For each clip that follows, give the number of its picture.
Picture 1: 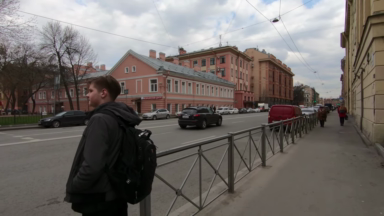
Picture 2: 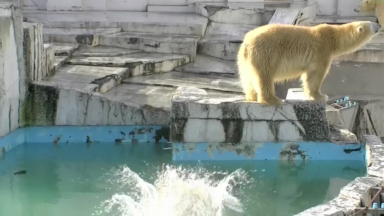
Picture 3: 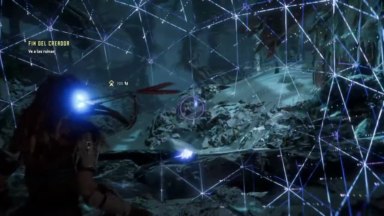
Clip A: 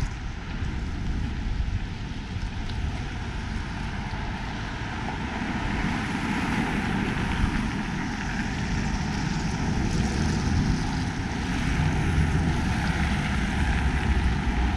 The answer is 1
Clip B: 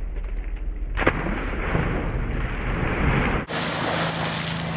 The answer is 2